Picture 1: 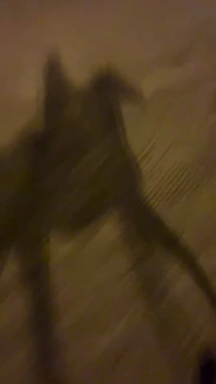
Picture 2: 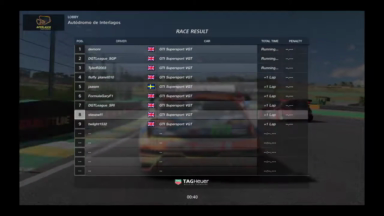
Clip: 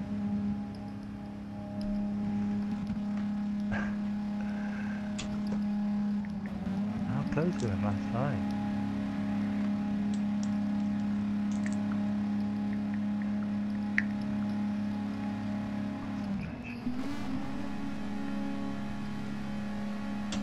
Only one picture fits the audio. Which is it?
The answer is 2